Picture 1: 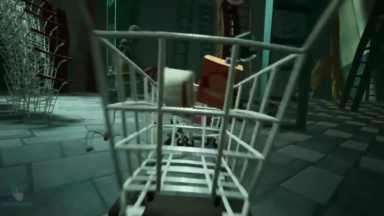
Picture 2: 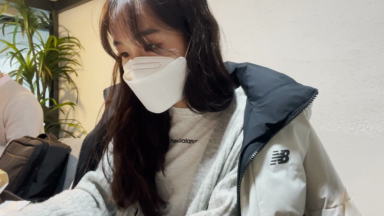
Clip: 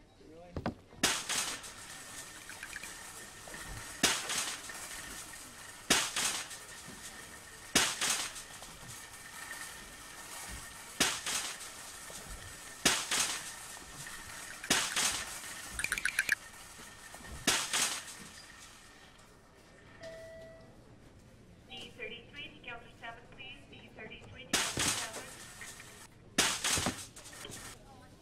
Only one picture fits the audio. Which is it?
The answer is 1